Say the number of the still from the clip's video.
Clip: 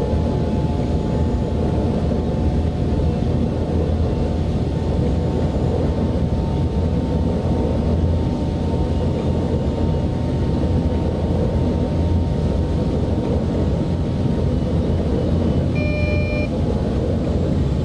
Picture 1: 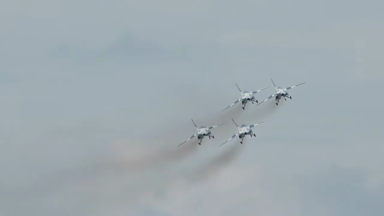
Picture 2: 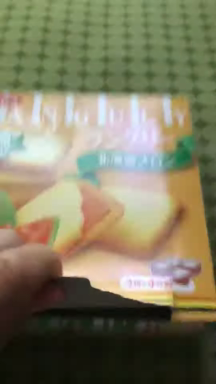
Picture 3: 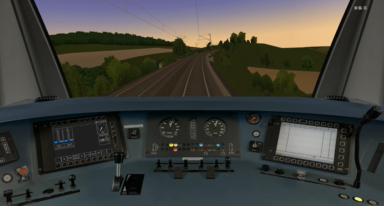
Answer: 3